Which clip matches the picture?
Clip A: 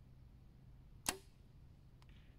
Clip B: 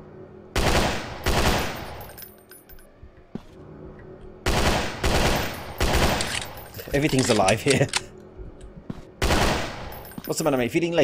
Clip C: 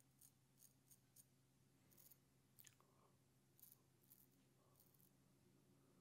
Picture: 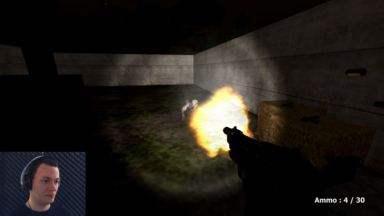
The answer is B